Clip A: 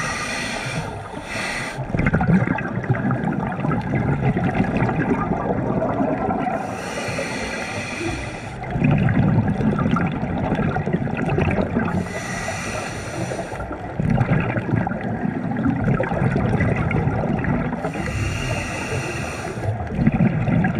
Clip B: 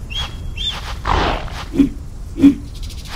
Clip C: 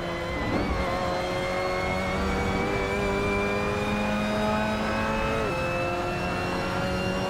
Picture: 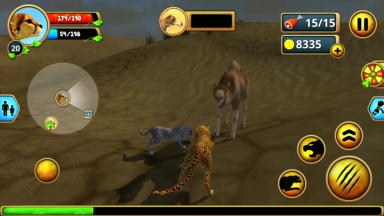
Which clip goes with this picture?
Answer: B